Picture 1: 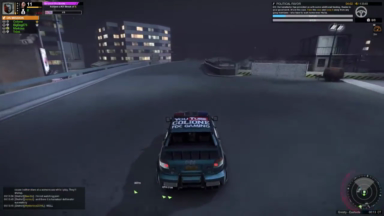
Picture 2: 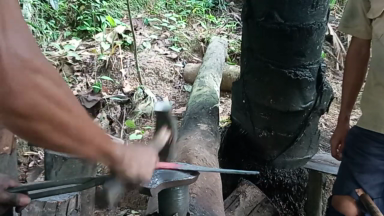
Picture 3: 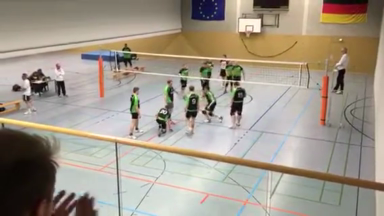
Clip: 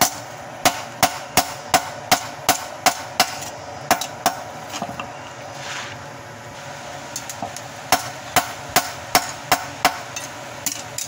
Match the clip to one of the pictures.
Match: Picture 2